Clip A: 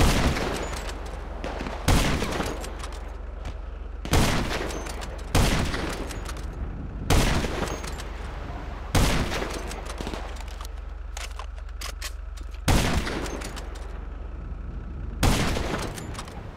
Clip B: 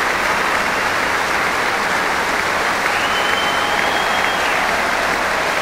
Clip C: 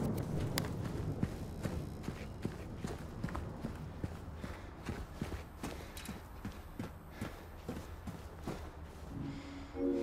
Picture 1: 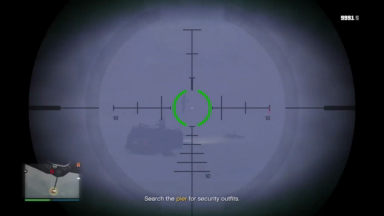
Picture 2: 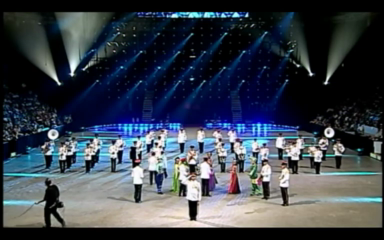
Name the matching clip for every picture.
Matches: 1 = A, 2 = B